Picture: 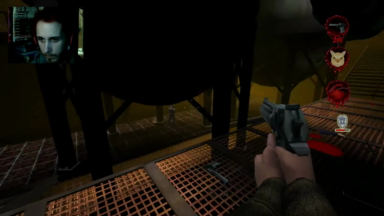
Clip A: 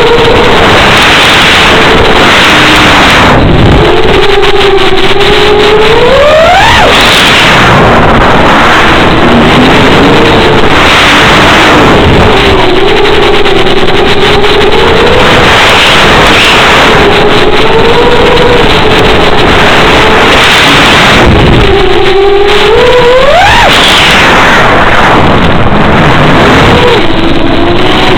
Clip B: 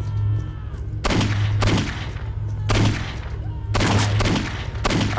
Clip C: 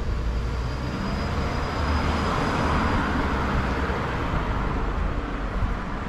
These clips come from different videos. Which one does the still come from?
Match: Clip B